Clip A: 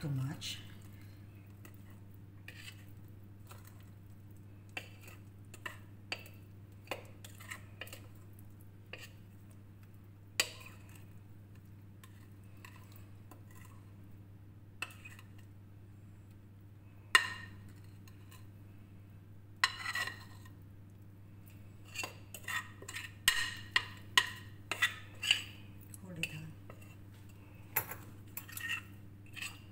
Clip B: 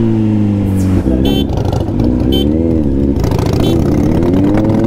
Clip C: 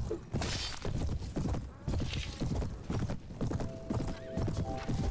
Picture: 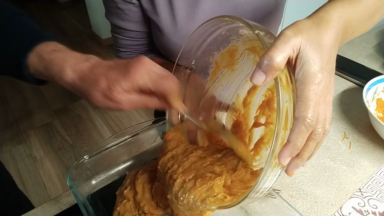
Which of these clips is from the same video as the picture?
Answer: A